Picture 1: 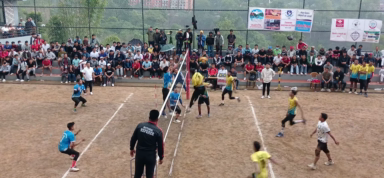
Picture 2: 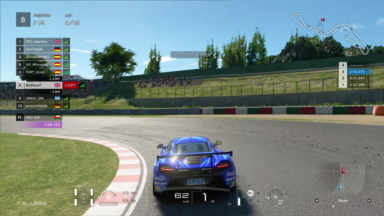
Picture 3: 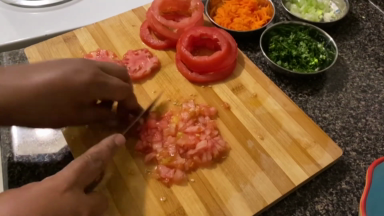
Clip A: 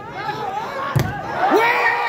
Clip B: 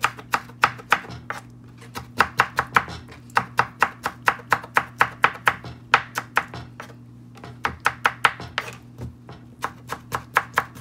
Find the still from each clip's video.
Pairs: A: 1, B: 3